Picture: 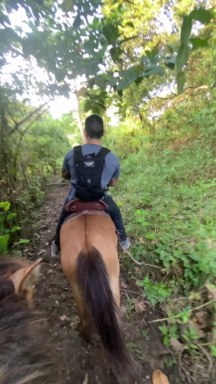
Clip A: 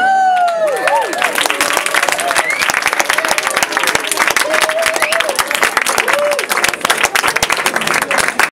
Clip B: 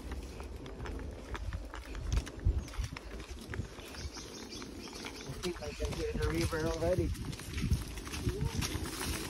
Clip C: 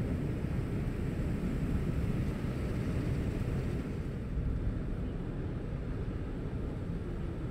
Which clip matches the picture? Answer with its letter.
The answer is B